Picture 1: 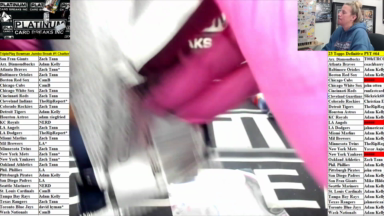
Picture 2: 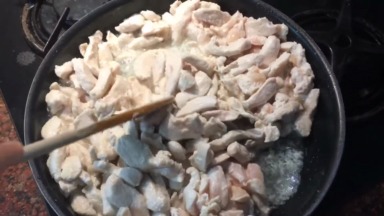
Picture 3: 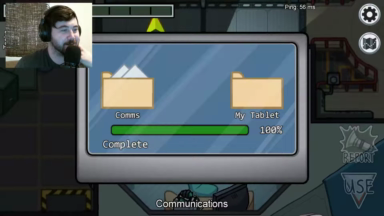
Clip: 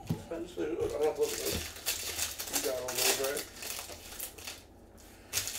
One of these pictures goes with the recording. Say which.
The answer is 1